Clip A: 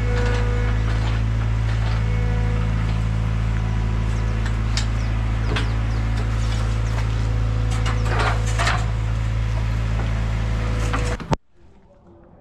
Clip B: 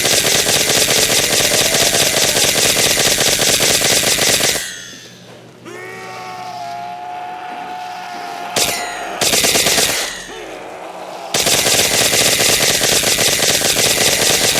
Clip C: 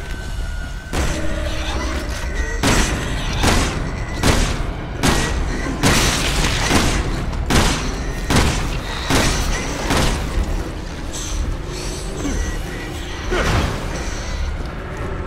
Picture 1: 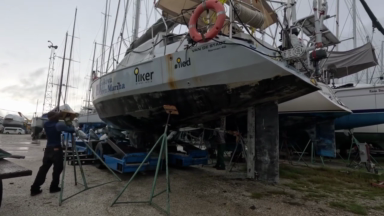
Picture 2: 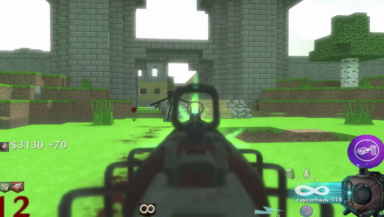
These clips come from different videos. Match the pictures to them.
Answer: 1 A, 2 B